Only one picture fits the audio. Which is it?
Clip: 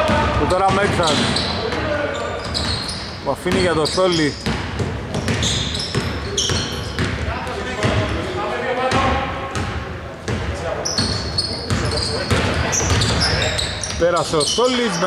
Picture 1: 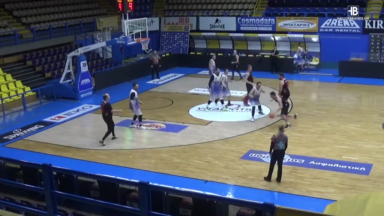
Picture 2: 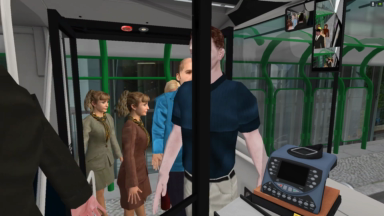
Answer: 1